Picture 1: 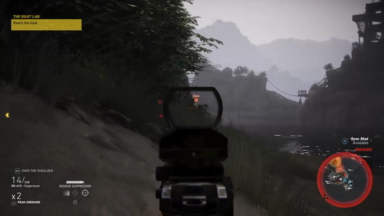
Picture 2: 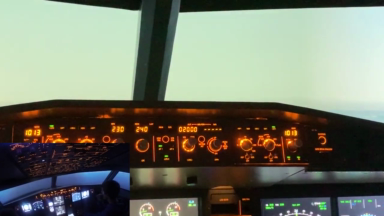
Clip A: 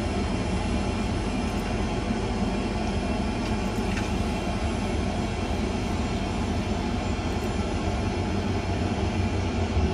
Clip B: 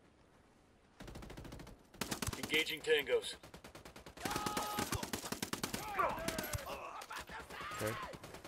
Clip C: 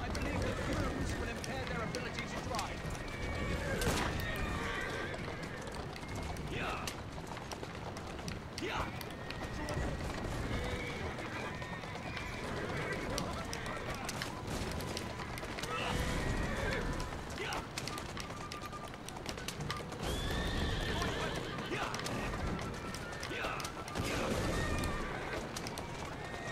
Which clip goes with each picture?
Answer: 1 B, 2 A